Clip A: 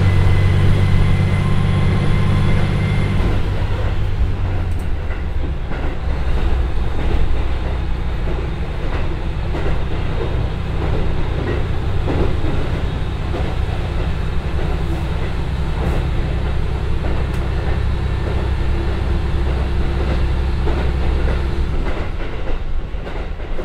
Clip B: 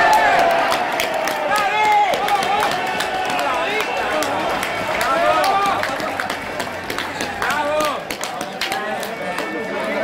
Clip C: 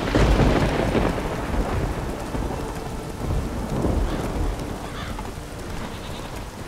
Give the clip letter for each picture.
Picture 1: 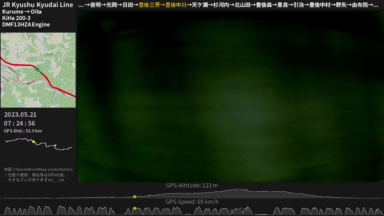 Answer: A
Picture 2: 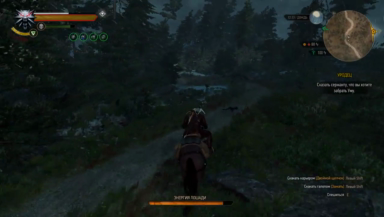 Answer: C